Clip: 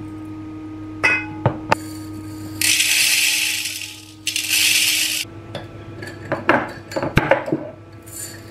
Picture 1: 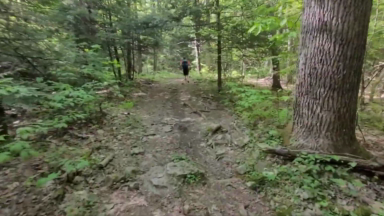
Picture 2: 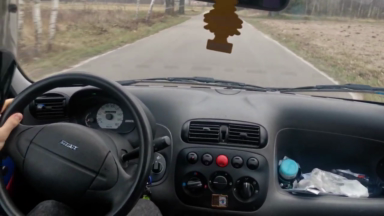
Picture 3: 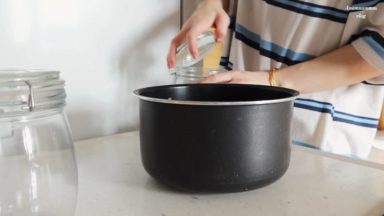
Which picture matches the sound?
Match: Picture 3